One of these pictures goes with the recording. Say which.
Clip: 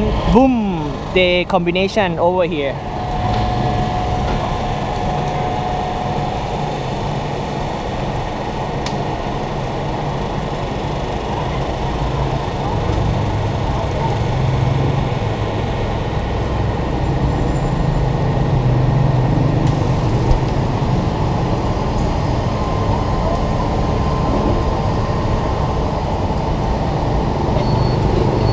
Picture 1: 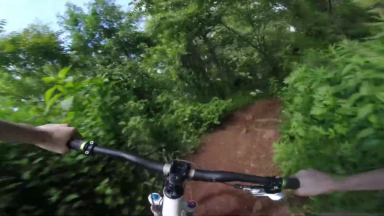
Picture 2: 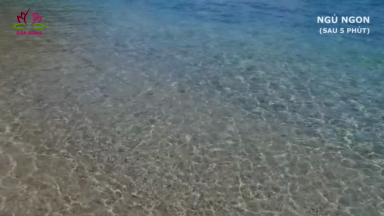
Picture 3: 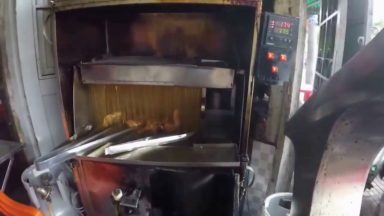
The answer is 3